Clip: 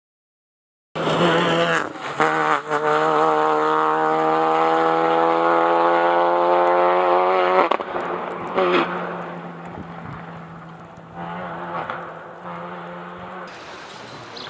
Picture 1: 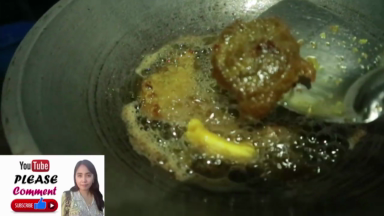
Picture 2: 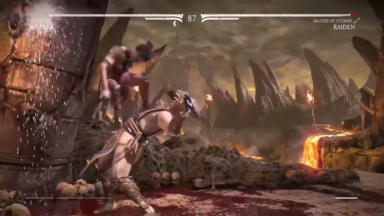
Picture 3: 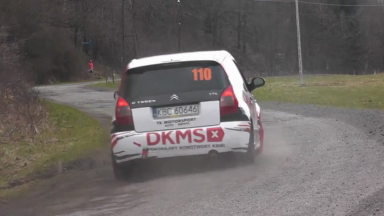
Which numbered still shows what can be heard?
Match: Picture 3